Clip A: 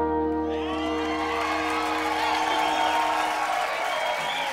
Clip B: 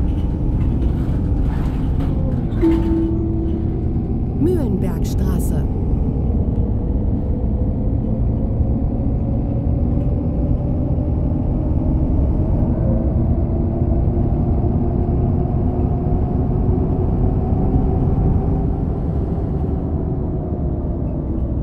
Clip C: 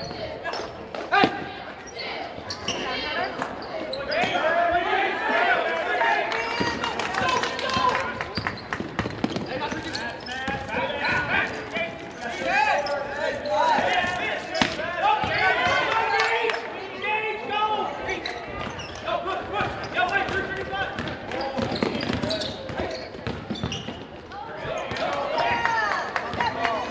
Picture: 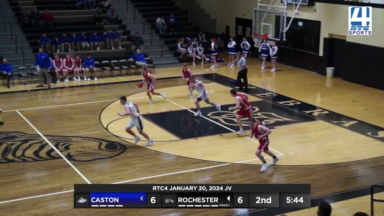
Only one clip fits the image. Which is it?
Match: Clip C